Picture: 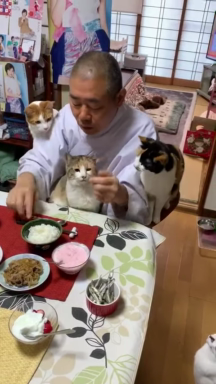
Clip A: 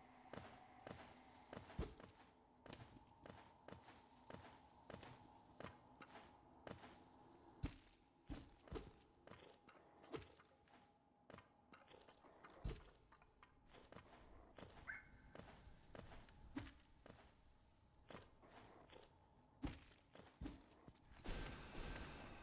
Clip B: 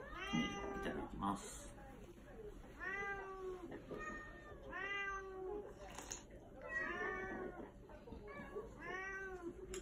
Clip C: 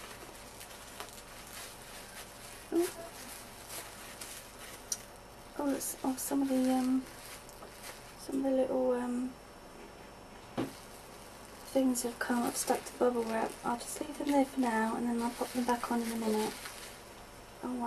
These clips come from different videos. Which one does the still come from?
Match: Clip B